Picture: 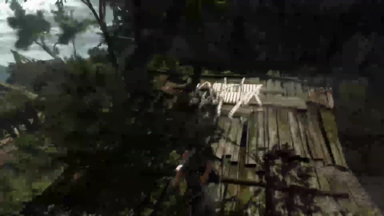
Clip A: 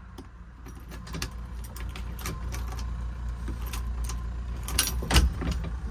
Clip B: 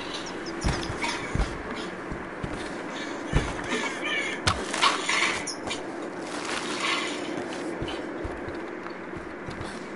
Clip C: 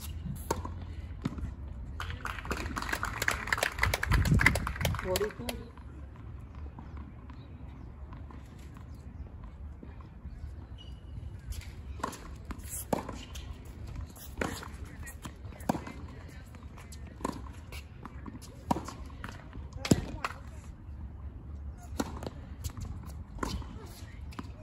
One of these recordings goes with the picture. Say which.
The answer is B